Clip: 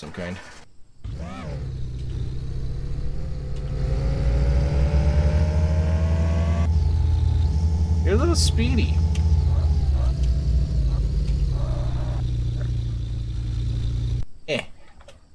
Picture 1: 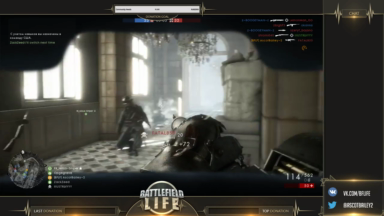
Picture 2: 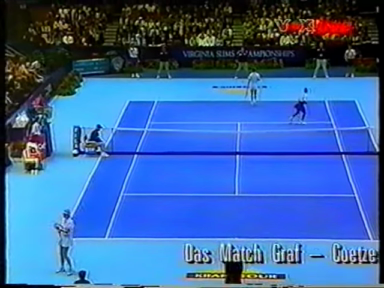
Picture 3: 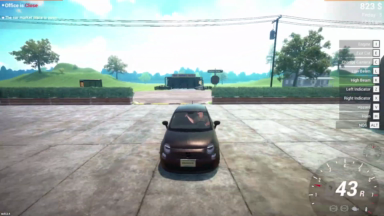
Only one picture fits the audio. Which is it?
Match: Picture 3